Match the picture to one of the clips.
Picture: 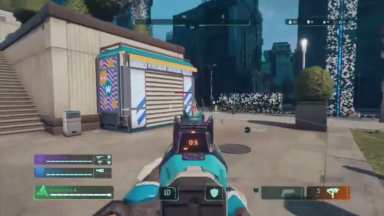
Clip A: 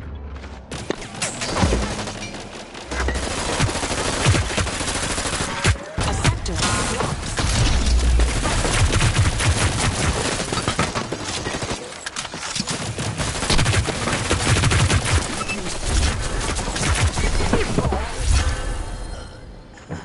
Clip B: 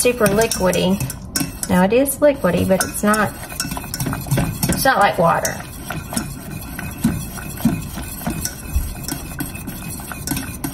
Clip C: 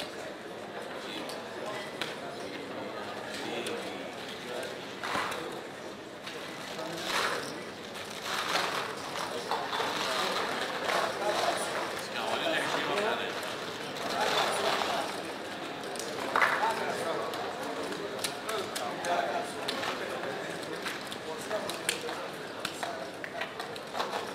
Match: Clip A